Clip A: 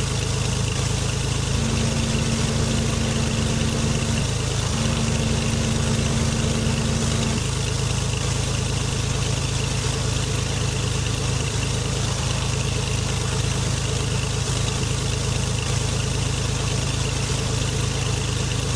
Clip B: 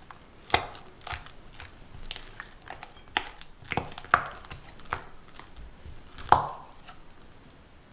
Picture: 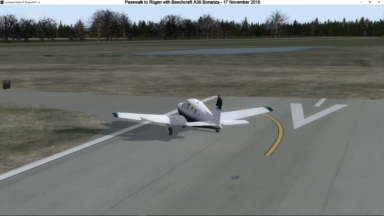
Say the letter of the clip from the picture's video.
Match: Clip A